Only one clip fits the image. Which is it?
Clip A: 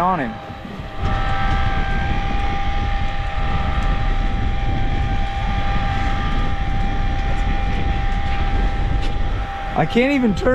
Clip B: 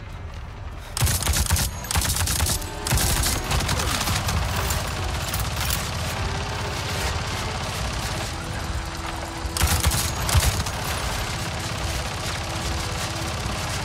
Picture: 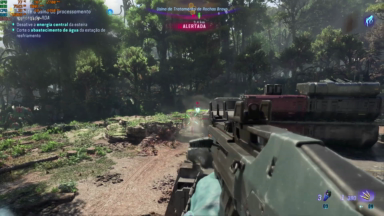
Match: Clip B